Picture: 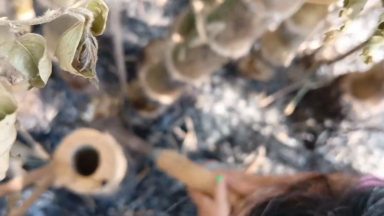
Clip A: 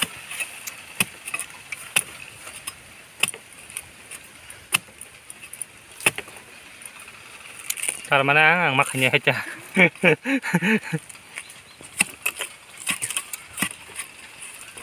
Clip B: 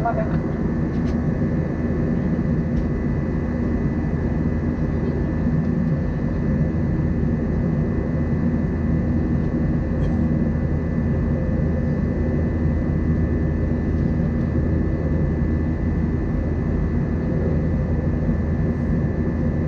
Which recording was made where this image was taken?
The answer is A